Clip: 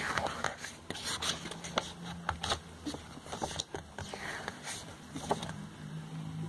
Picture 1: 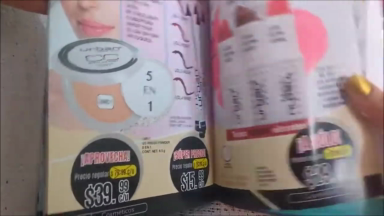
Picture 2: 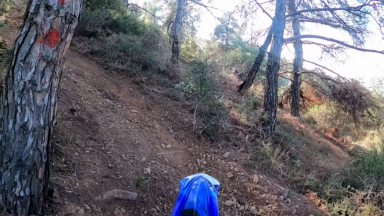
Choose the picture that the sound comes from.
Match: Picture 1